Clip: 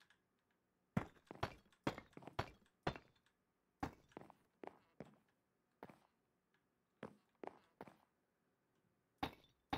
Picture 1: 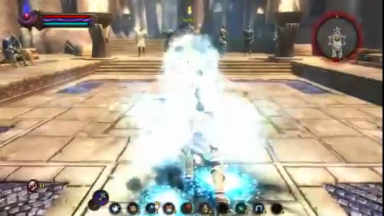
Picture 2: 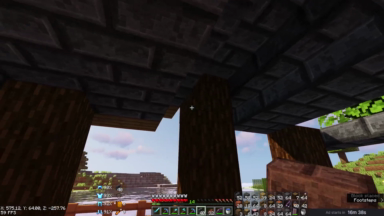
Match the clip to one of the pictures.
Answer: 2